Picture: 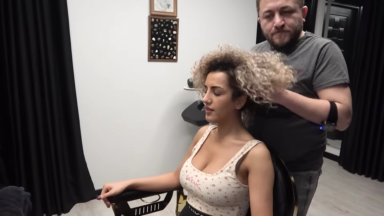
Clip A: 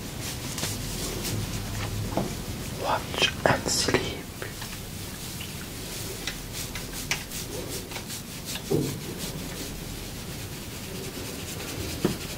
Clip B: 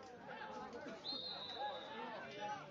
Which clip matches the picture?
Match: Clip A